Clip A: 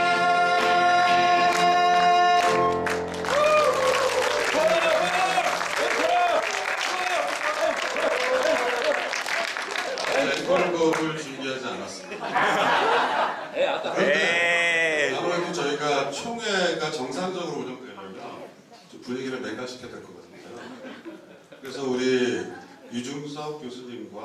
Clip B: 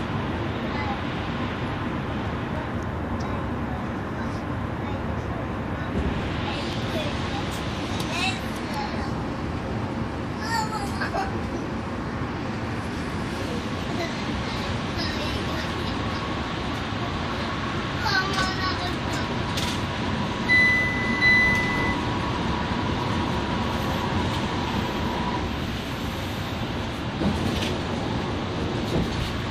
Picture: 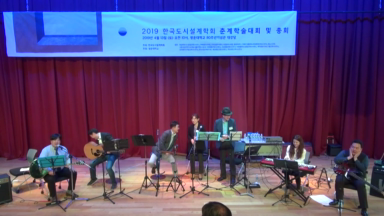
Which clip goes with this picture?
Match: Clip A